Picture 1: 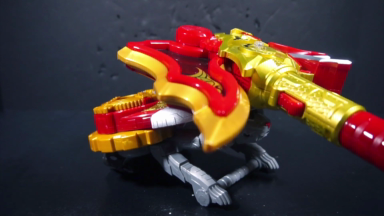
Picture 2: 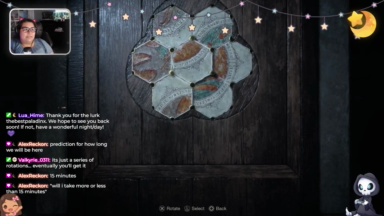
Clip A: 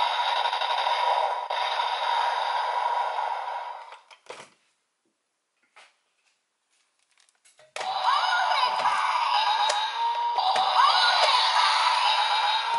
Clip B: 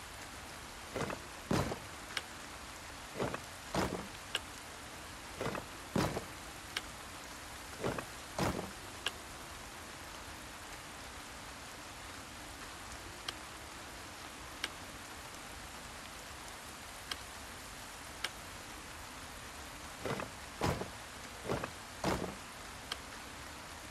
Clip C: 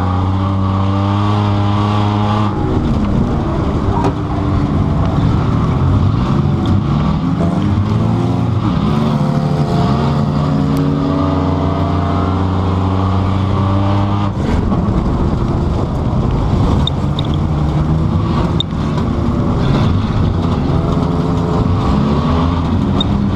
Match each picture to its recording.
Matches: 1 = A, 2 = B